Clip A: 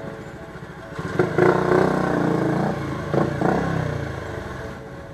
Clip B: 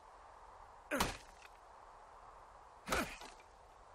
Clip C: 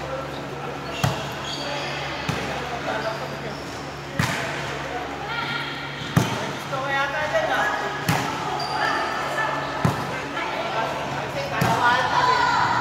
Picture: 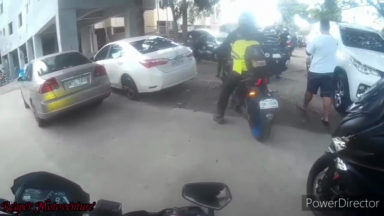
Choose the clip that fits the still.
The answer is A